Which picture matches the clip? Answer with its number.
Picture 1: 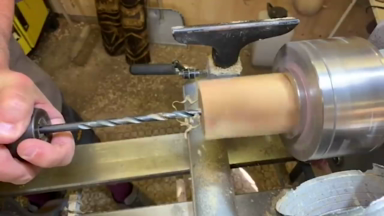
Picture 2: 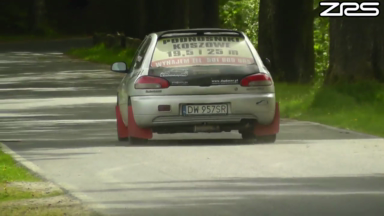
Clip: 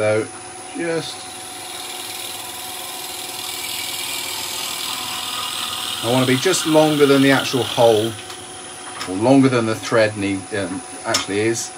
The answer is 1